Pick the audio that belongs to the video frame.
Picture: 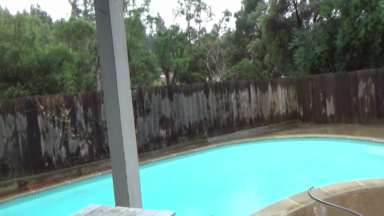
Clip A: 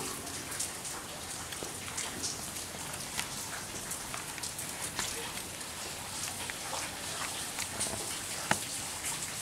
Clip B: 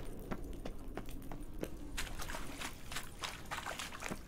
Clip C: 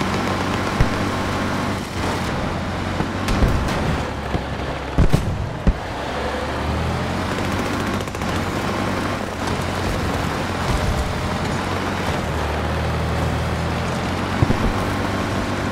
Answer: A